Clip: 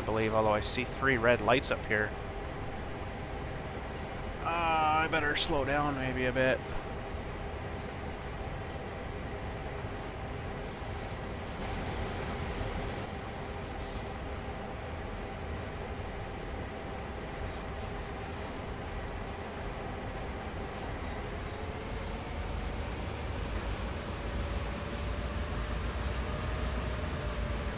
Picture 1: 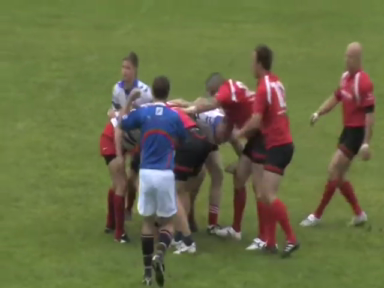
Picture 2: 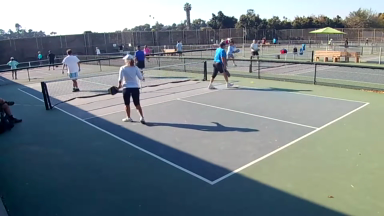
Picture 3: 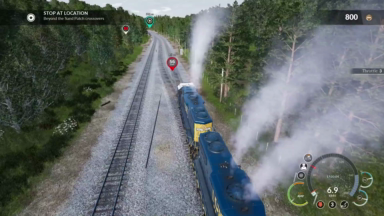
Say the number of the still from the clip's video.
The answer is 3